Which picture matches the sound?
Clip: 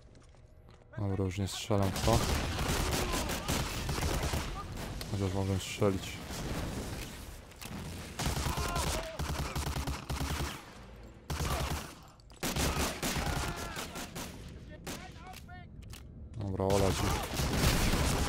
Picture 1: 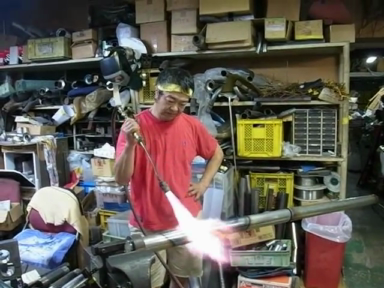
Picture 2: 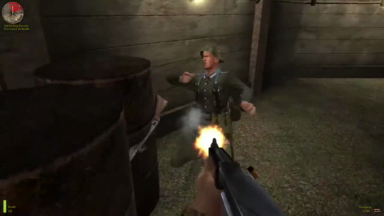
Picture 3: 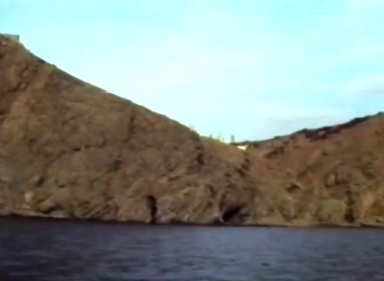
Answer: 2